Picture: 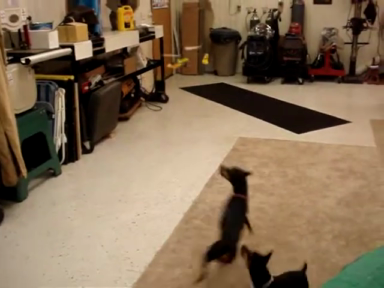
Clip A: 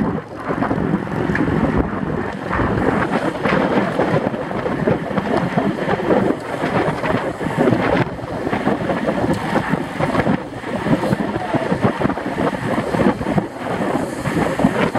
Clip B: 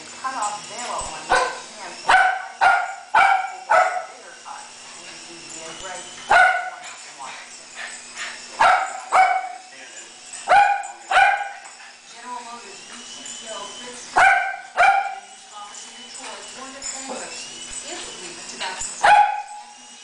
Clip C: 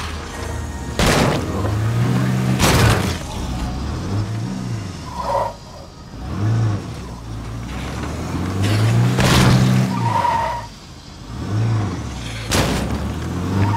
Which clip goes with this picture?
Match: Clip B